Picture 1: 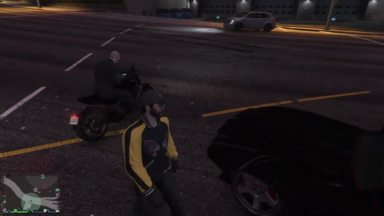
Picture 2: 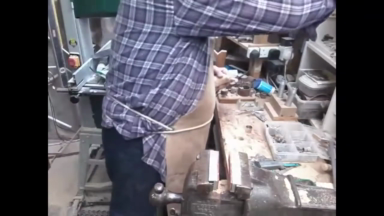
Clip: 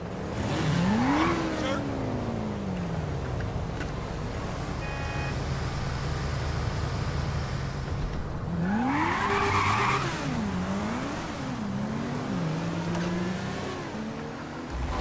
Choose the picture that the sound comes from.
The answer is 1